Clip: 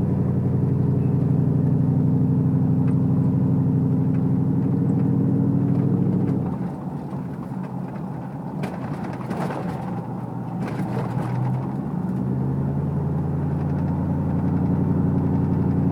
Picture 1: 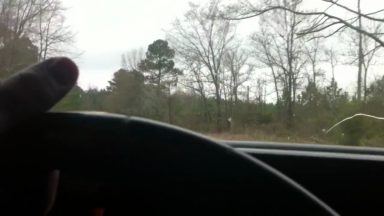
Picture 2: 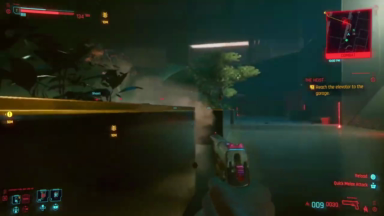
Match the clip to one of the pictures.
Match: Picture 1